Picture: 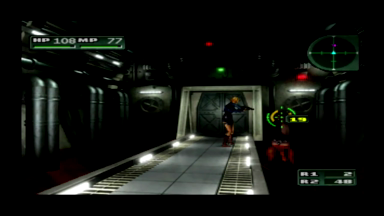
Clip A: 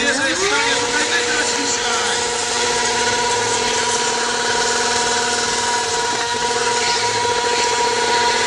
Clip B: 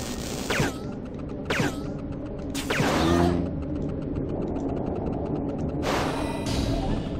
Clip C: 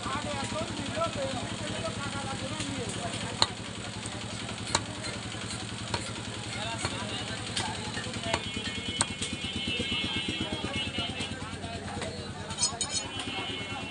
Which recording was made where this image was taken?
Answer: B